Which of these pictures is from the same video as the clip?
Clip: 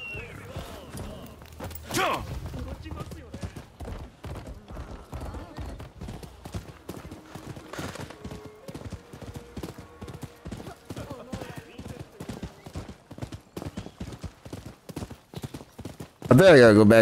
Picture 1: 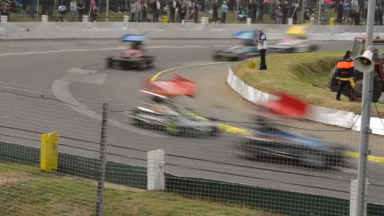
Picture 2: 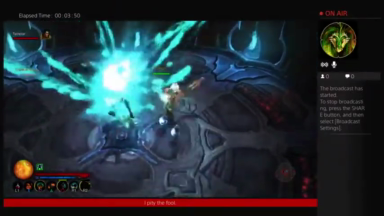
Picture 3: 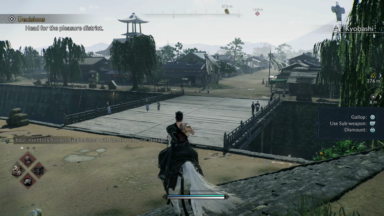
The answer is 3